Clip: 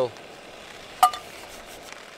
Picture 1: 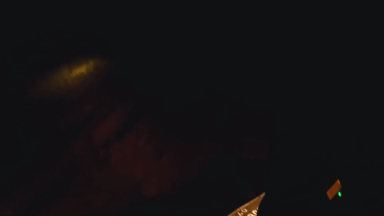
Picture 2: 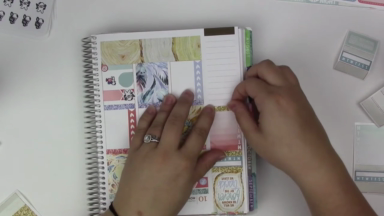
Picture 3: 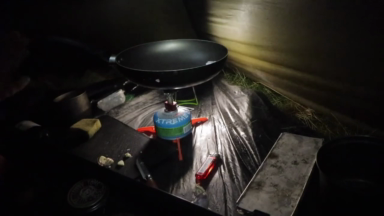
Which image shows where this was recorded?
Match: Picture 3